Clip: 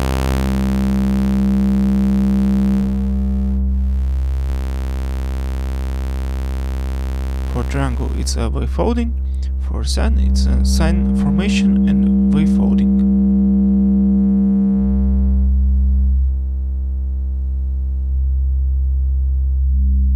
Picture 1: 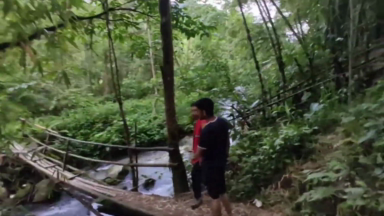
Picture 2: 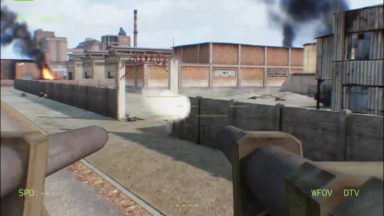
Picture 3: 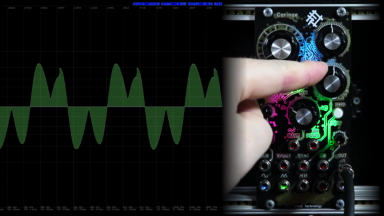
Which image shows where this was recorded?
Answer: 3